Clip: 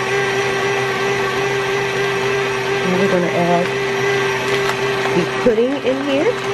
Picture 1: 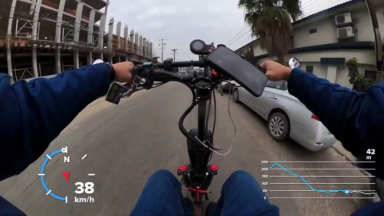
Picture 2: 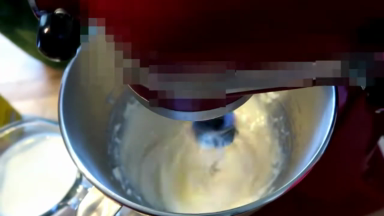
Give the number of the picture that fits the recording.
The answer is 2